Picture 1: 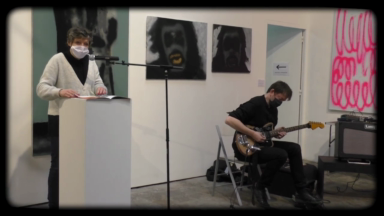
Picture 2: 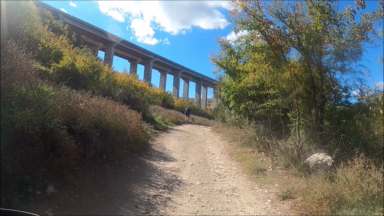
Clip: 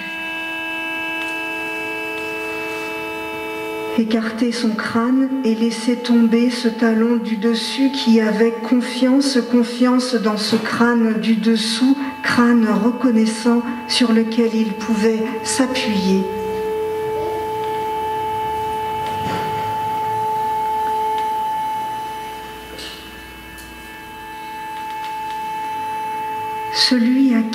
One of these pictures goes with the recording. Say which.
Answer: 1